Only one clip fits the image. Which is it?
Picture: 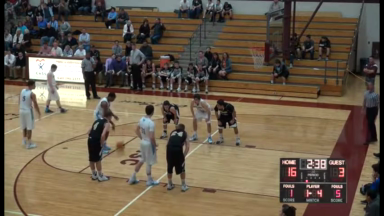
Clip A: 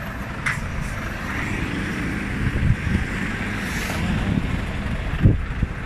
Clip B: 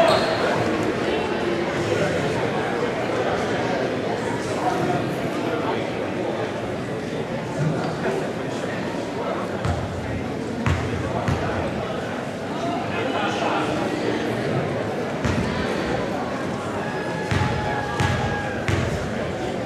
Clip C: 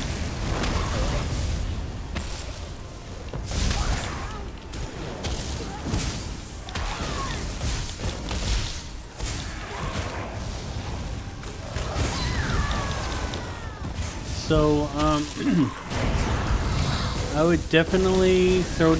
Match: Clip B